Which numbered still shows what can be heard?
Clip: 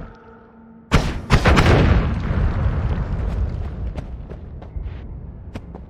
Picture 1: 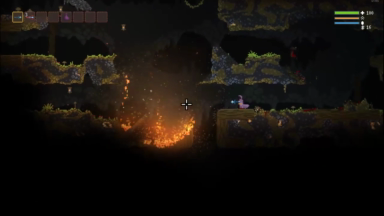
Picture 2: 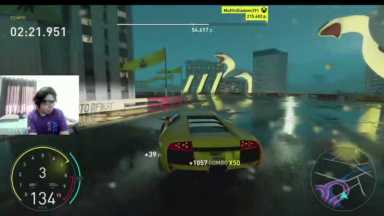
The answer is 1